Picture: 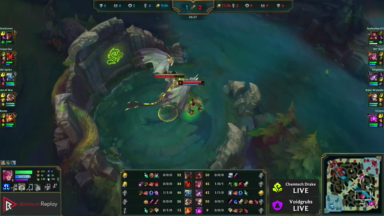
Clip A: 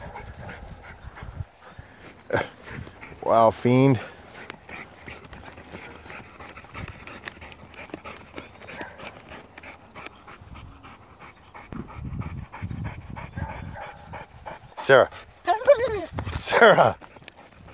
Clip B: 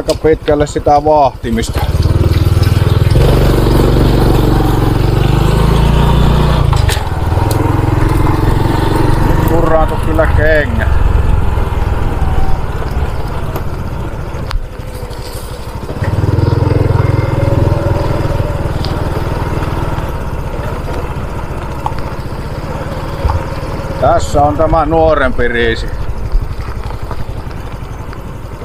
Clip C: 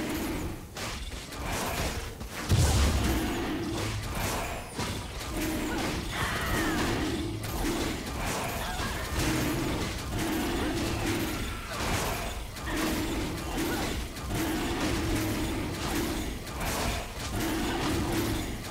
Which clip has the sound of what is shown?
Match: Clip C